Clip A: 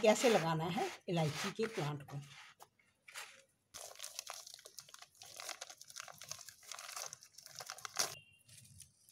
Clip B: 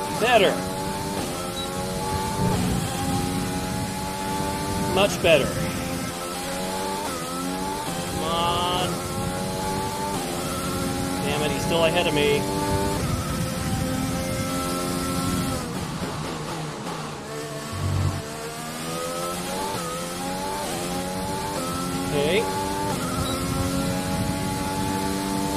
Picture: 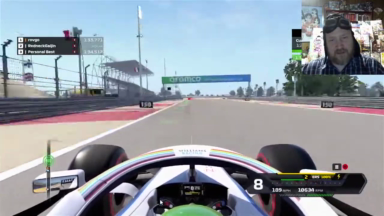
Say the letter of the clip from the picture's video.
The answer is B